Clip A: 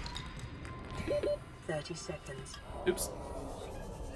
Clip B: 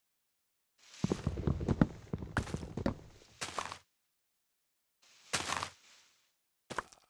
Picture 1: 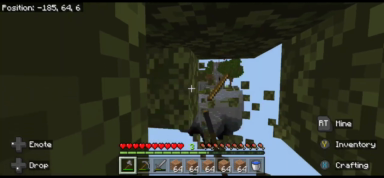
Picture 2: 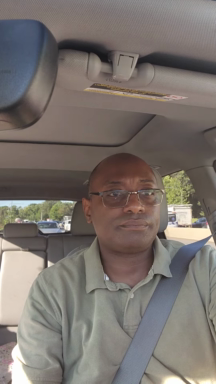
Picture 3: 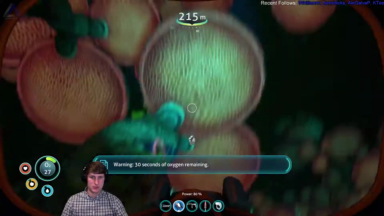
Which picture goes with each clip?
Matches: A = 3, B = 1